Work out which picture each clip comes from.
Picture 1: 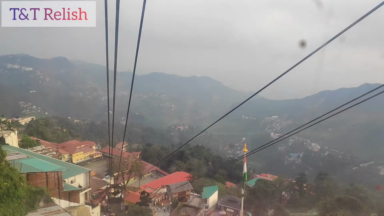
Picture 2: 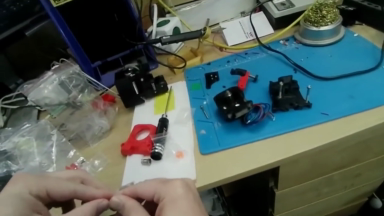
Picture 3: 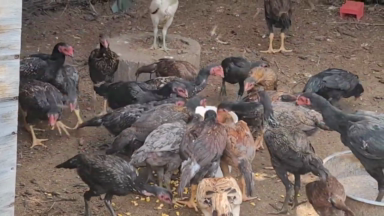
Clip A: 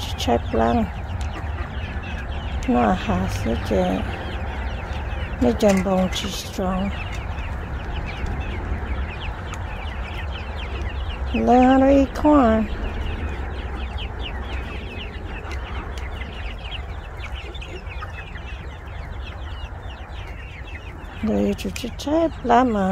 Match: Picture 3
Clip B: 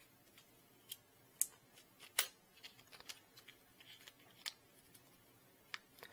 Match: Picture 2